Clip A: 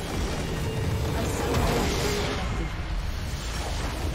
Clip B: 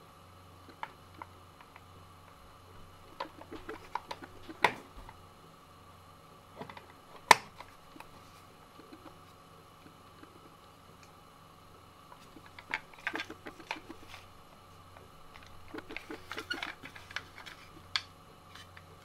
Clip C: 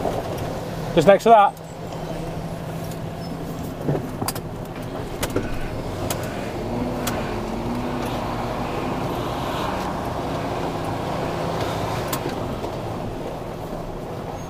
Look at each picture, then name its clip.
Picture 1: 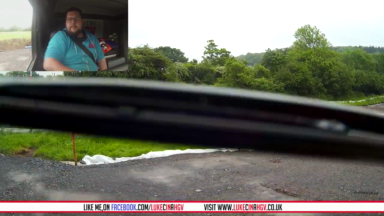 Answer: C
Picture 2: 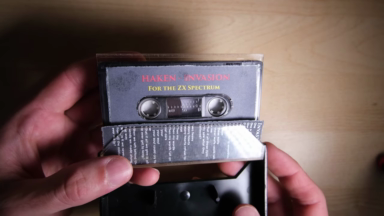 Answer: B